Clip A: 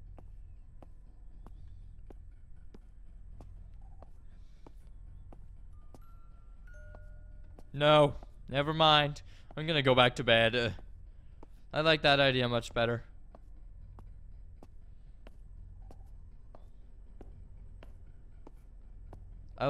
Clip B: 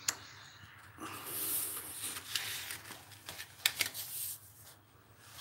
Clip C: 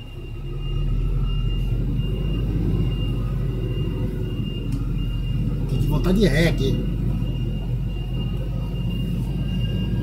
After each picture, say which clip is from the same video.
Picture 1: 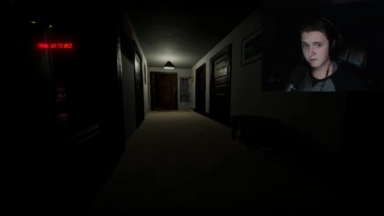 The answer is A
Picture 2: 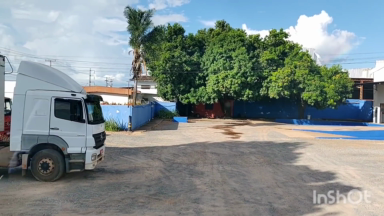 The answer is C